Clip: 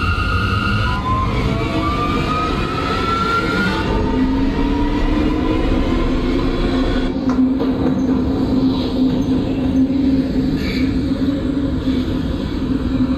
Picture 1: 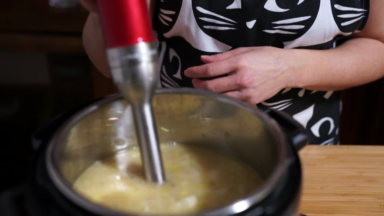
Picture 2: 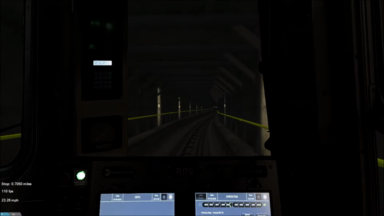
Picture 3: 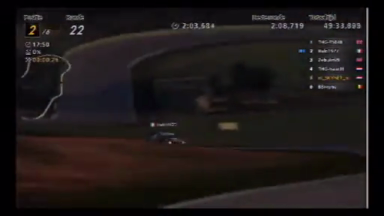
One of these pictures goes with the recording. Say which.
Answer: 2